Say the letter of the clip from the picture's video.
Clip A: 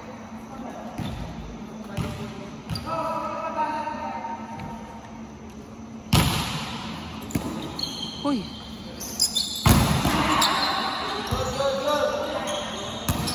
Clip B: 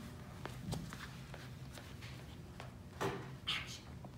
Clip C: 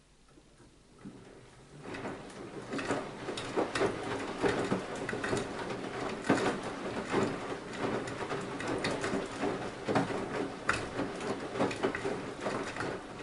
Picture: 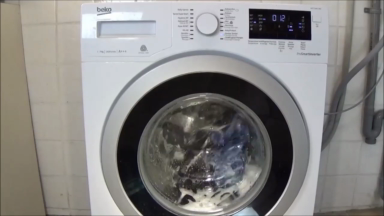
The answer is C